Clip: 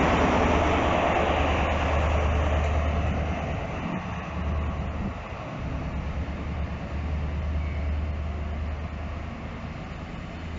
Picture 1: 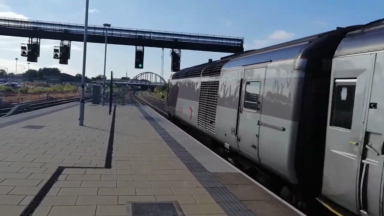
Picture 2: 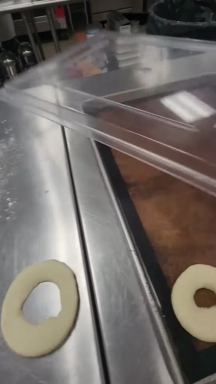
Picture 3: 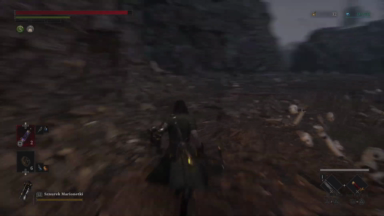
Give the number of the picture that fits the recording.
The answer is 1